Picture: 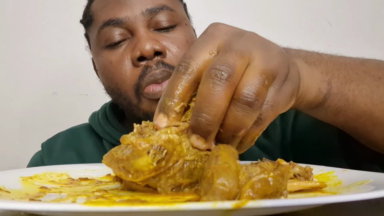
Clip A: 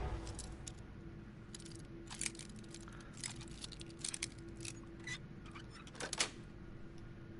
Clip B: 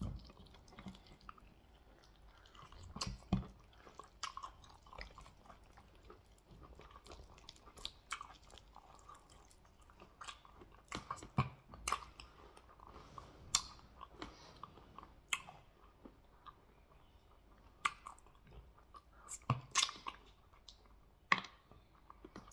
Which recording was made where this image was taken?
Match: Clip B